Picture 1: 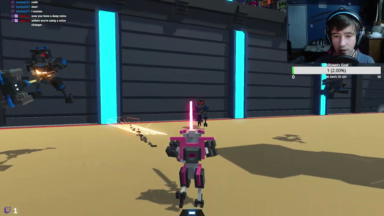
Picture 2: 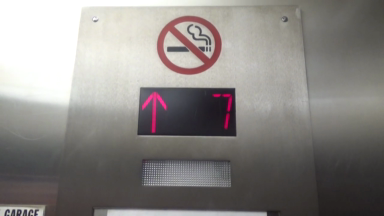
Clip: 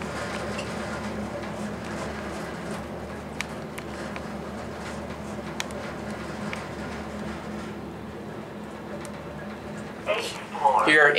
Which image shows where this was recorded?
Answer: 2